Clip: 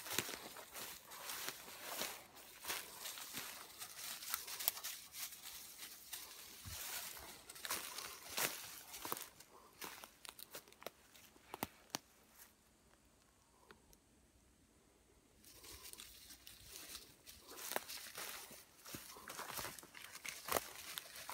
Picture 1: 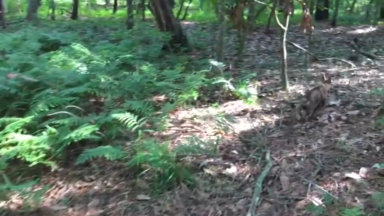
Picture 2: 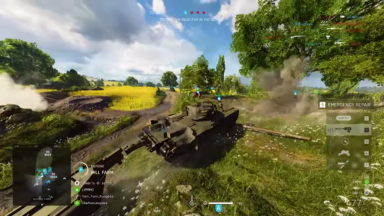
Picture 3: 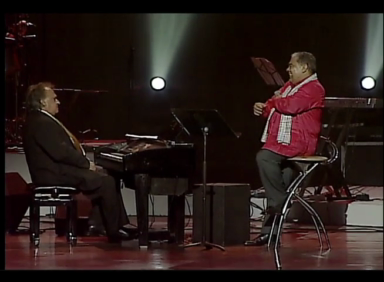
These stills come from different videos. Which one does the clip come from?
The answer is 1